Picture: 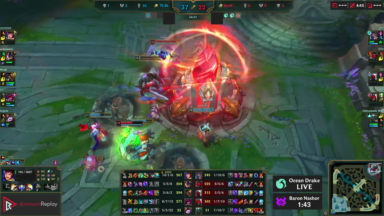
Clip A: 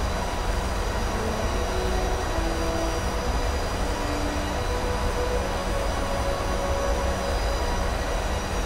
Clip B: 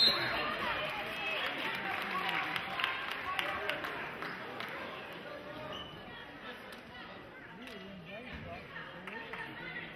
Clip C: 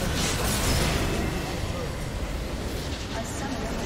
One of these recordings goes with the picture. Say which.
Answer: C